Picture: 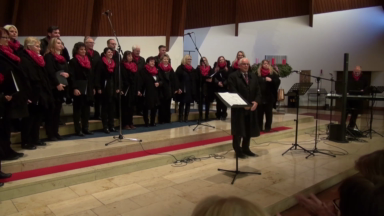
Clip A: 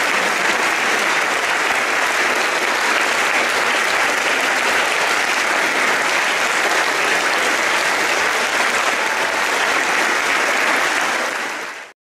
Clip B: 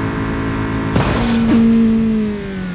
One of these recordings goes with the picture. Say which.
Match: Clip A